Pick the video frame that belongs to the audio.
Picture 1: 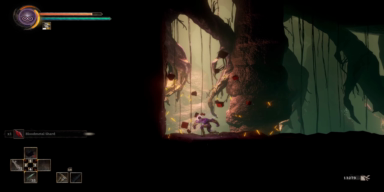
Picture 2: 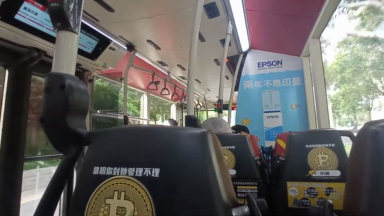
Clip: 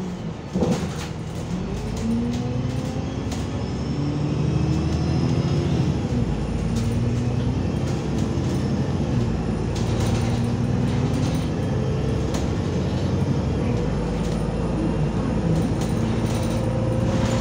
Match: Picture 2